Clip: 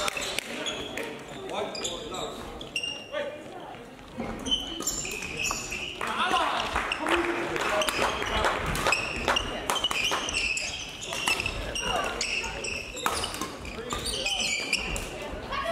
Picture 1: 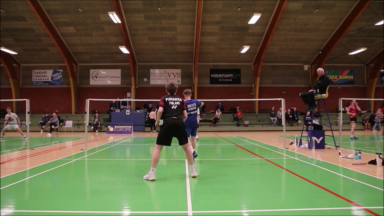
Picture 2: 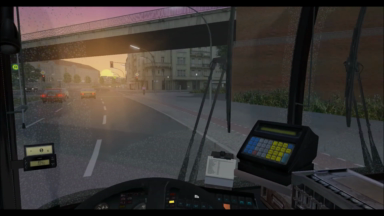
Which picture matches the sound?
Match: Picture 1